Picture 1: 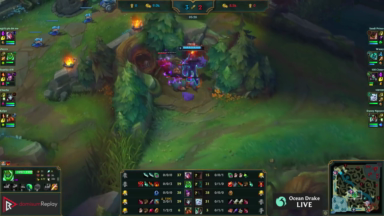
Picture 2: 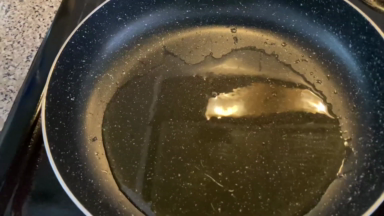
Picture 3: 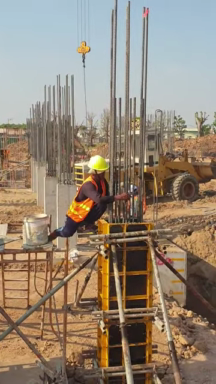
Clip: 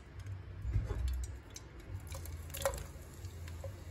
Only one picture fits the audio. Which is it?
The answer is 2